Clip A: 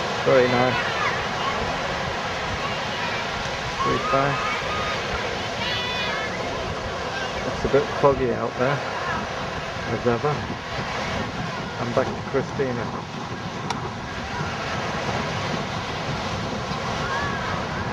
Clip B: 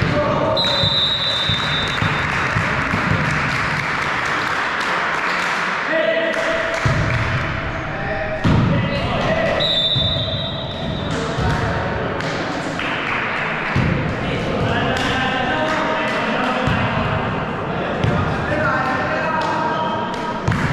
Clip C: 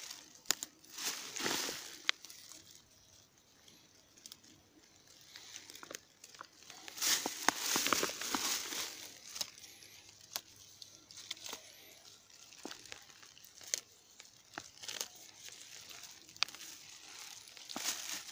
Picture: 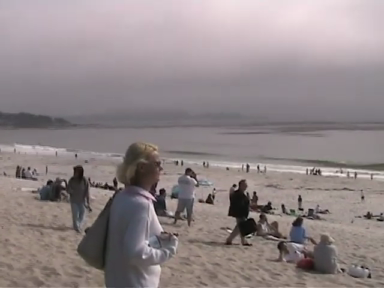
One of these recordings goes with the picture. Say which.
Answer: A